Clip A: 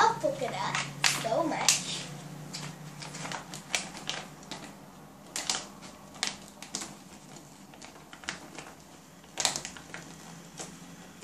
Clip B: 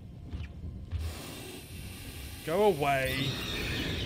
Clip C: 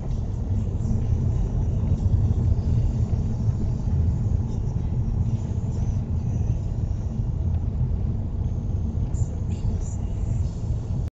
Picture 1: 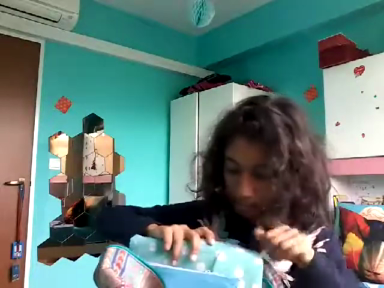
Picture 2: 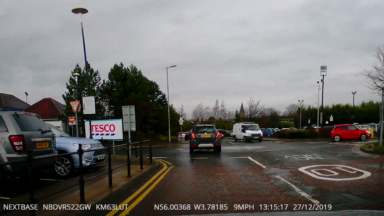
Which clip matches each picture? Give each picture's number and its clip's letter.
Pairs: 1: A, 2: C